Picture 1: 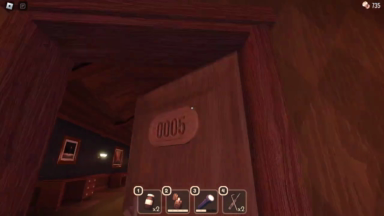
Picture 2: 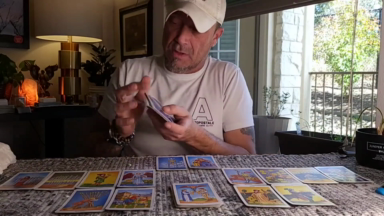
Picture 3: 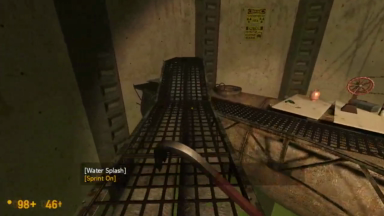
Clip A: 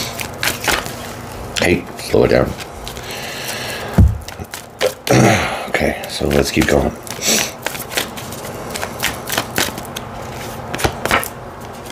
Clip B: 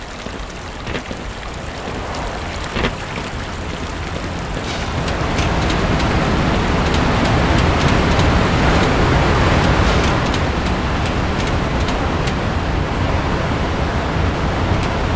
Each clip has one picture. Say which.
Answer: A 2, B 3